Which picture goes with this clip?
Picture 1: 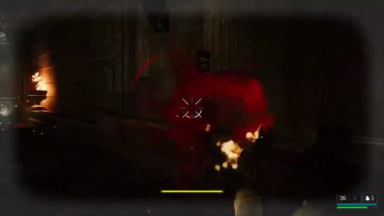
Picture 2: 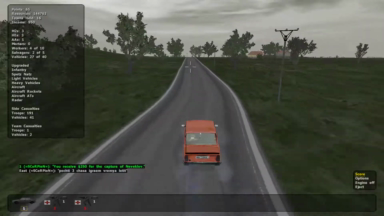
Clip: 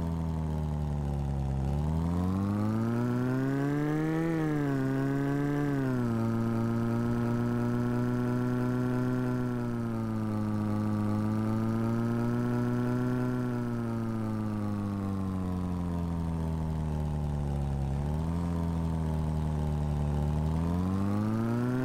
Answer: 2